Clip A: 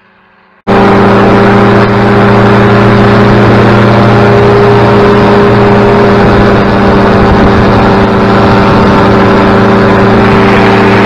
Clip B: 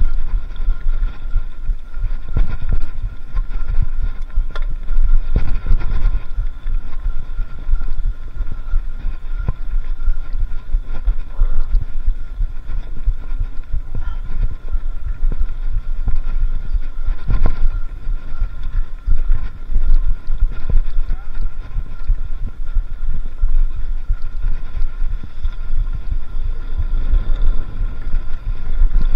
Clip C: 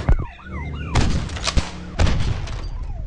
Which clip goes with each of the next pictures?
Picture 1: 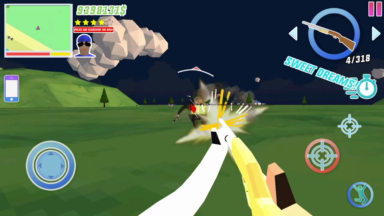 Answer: C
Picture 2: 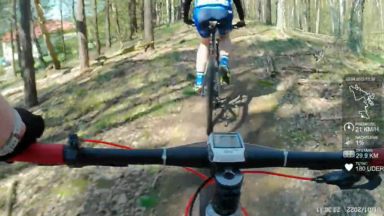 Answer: B